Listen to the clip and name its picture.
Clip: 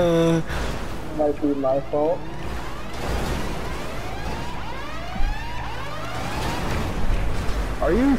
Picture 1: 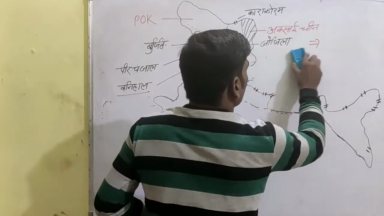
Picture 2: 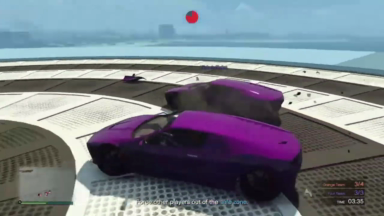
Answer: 2